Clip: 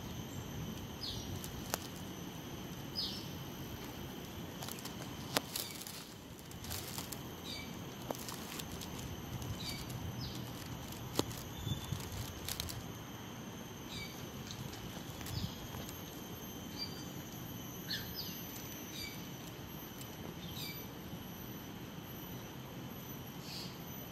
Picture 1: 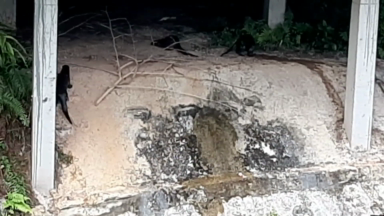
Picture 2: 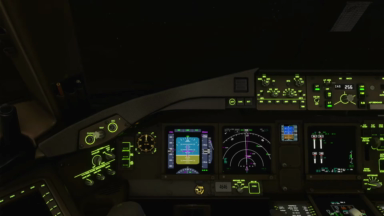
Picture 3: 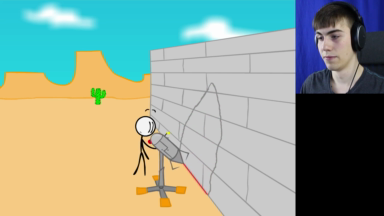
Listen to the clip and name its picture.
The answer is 1